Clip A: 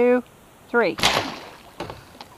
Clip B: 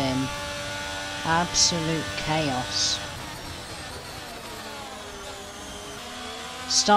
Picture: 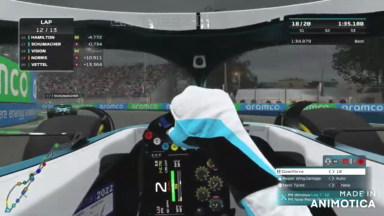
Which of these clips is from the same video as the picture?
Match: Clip B